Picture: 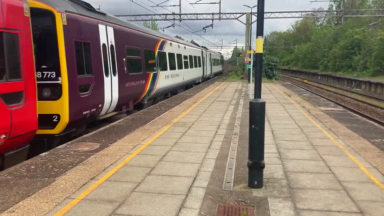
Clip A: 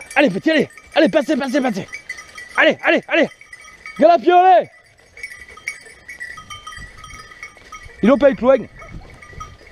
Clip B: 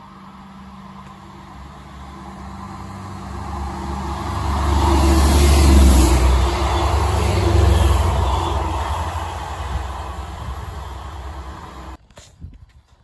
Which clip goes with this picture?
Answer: B